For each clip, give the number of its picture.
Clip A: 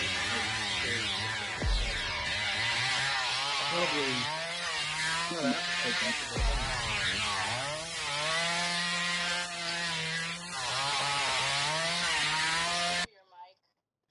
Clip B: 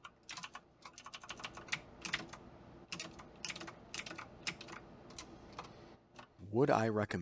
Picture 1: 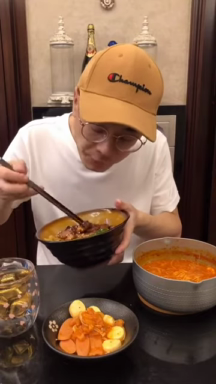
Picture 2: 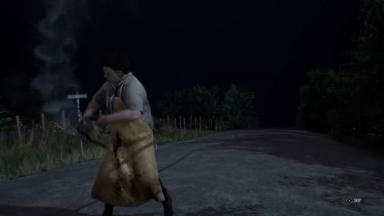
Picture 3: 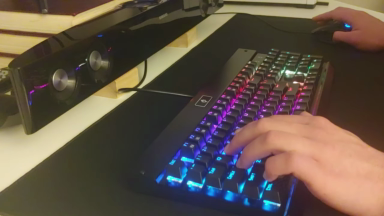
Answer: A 2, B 3